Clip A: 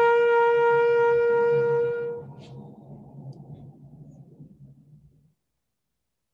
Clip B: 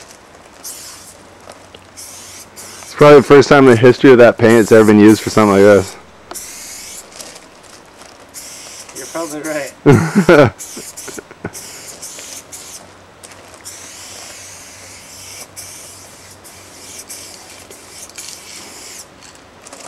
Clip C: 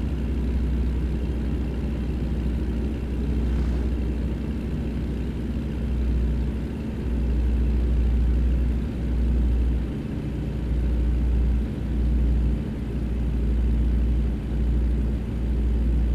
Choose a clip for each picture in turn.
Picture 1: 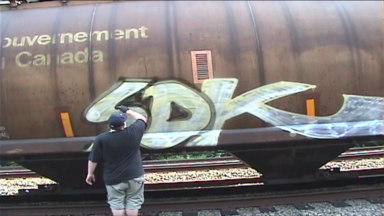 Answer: B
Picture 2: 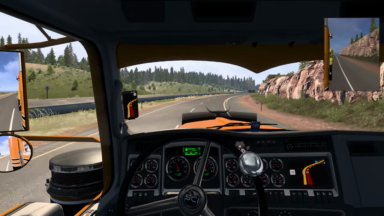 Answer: C